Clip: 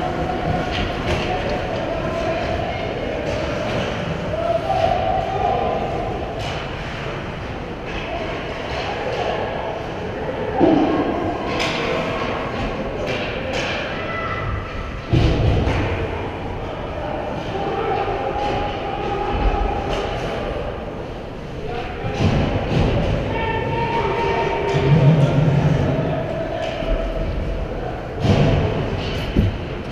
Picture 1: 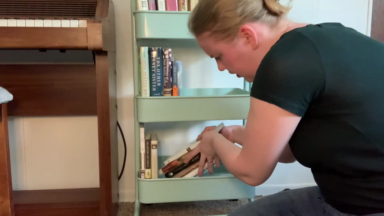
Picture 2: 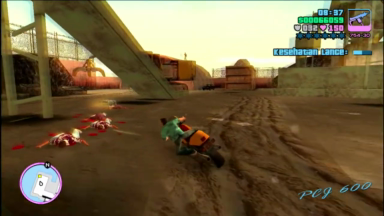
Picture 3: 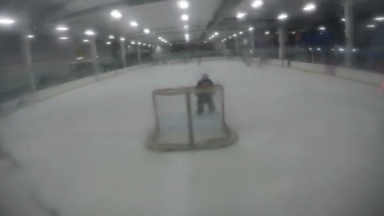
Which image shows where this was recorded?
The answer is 3